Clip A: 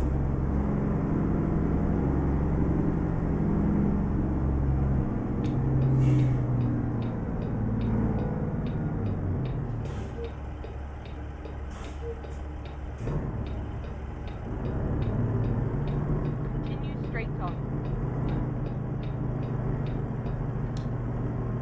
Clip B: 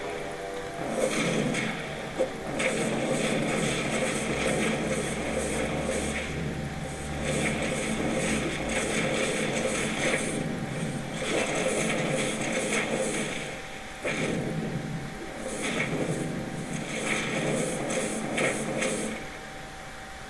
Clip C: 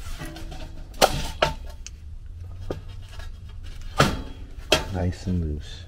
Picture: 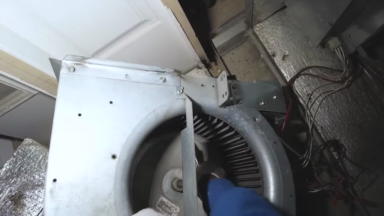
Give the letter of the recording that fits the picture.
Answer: C